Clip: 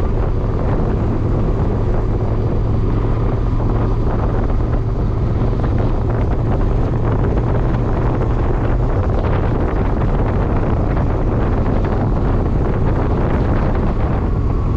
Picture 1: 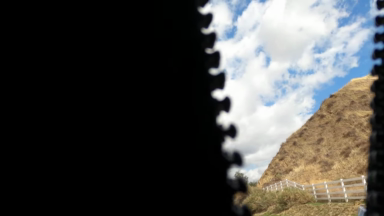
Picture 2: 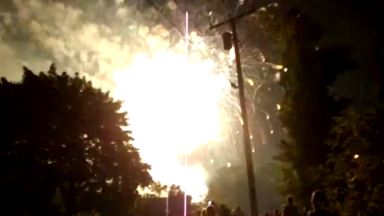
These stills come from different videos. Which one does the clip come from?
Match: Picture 1